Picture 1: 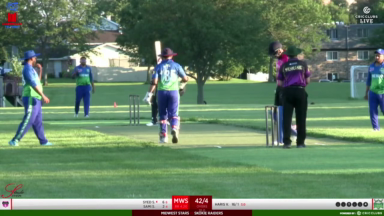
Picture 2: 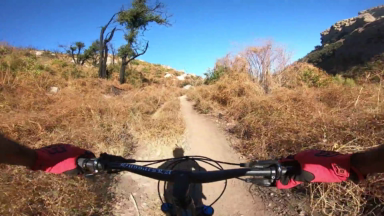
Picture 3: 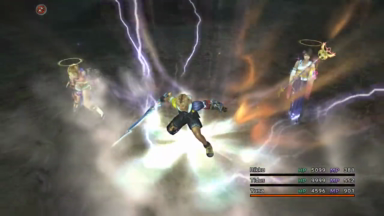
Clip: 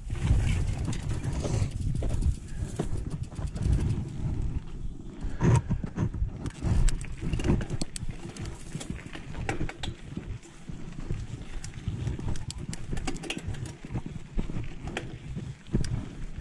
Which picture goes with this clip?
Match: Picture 2